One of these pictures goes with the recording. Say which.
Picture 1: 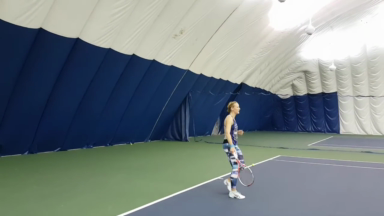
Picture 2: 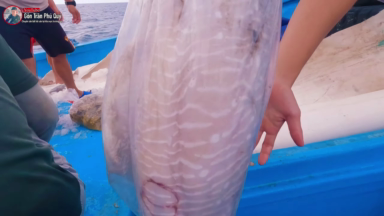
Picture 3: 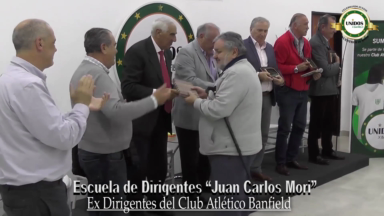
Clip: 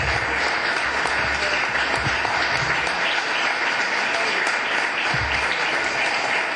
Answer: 3